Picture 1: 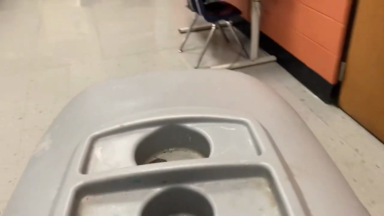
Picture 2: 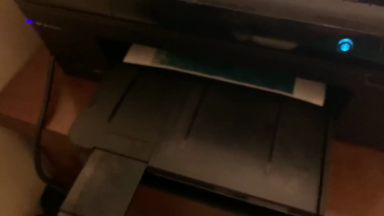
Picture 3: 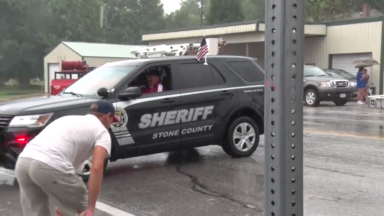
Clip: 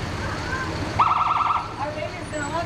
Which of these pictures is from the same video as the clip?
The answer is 3